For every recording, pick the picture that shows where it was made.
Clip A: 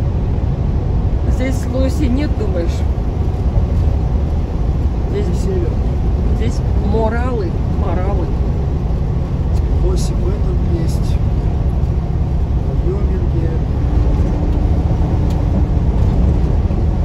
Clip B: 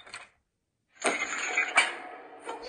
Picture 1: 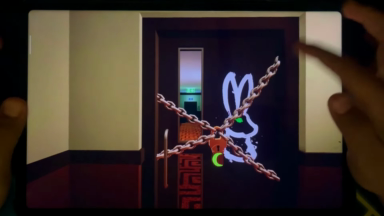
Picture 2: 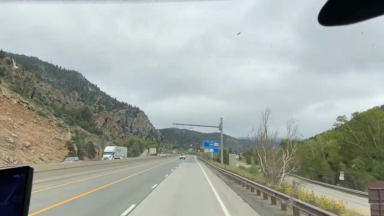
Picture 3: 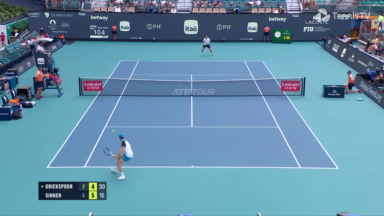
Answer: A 2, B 1